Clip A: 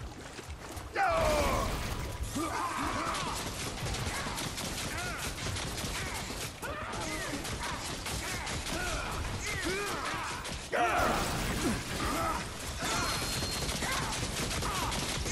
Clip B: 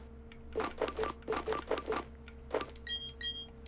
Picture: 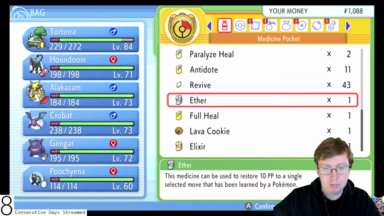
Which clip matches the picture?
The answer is B